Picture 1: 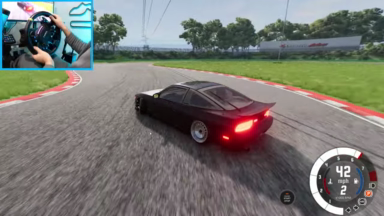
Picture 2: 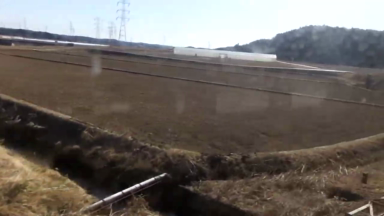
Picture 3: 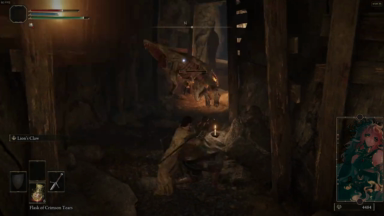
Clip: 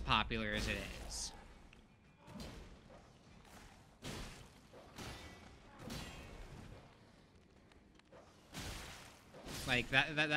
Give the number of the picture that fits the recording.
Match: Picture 3